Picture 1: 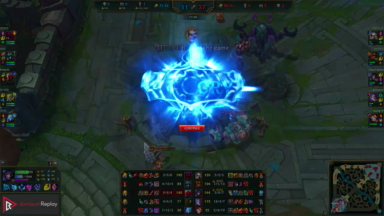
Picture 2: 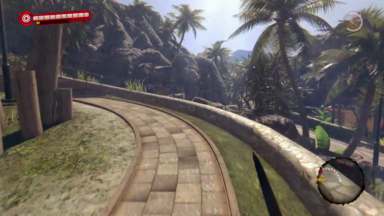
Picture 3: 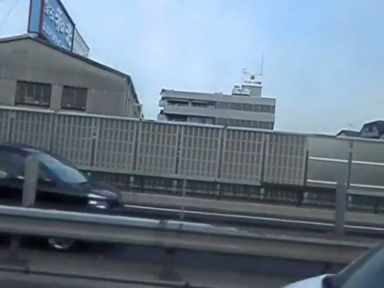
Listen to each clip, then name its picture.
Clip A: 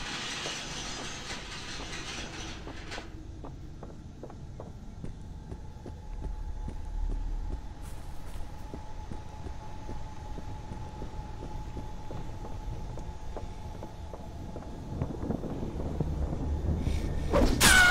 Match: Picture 2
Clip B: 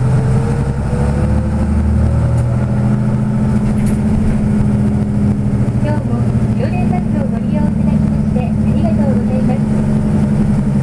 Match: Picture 3